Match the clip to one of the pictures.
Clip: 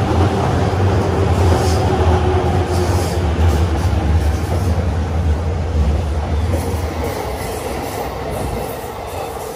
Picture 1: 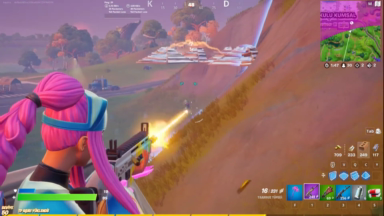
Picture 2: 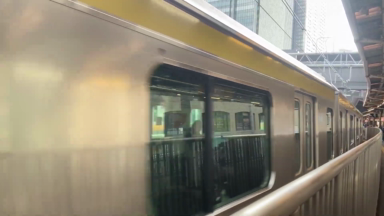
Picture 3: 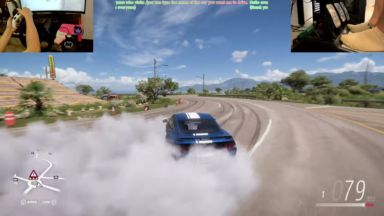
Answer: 2